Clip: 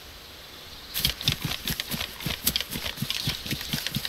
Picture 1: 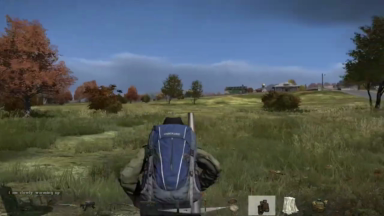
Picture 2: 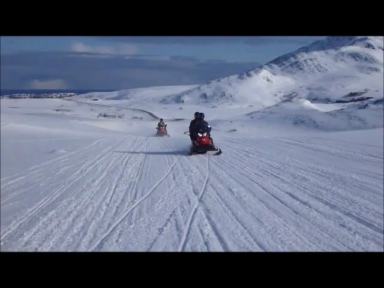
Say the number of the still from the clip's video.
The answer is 1